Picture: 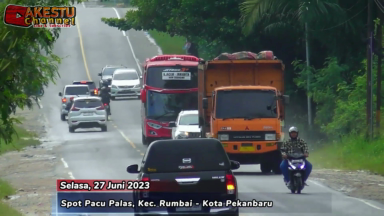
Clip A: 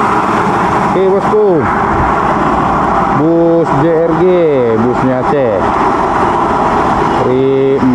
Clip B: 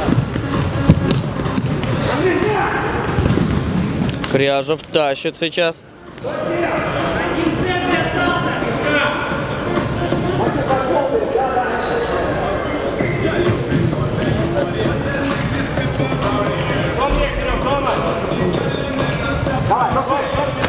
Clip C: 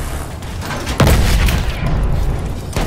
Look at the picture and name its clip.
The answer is A